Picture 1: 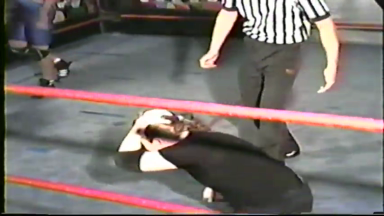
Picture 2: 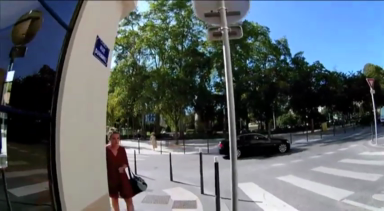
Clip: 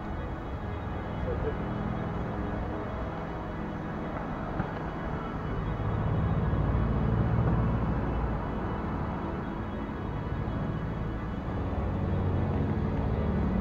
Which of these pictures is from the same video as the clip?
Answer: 2